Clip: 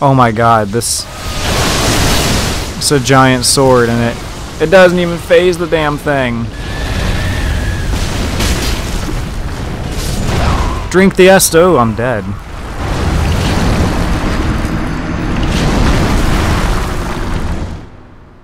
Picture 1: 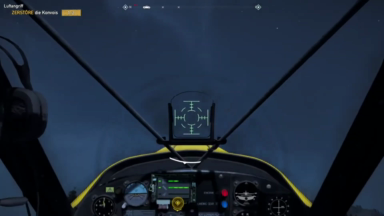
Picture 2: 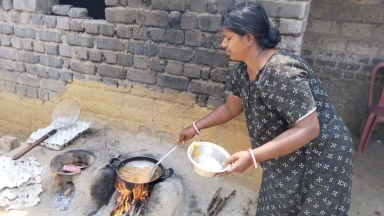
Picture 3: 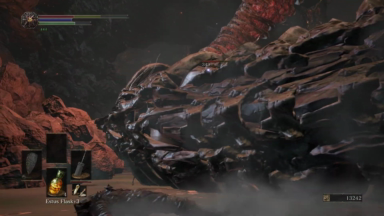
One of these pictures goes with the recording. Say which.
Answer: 3